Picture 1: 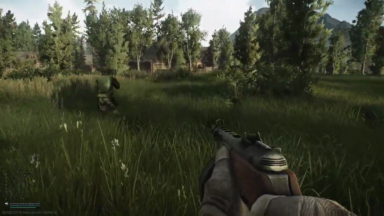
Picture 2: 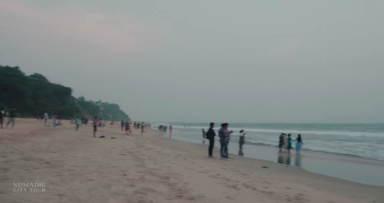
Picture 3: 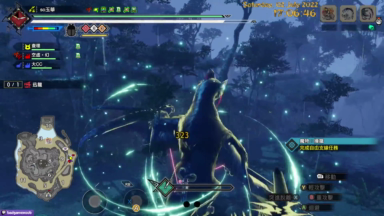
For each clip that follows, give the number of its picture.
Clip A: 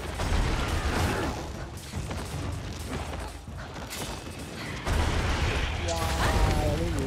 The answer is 3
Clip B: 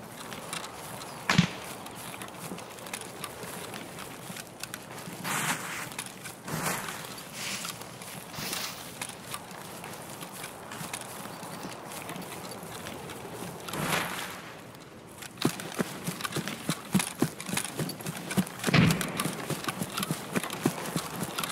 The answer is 1